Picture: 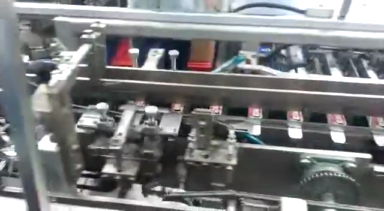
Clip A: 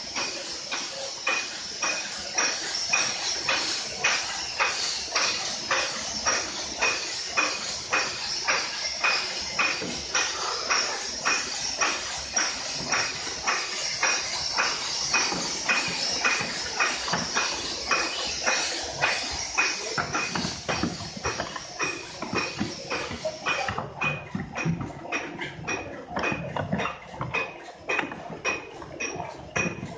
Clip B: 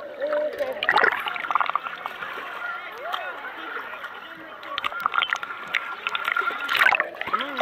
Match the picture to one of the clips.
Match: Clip A